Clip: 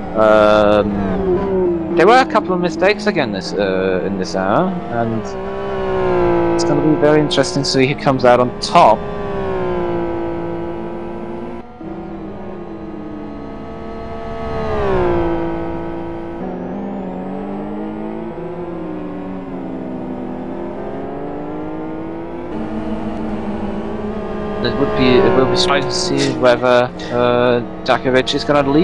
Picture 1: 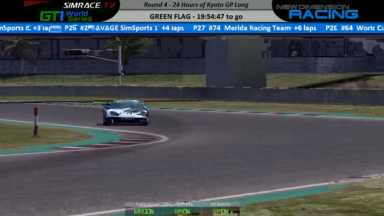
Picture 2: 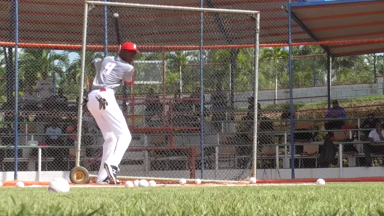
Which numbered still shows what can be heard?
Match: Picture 1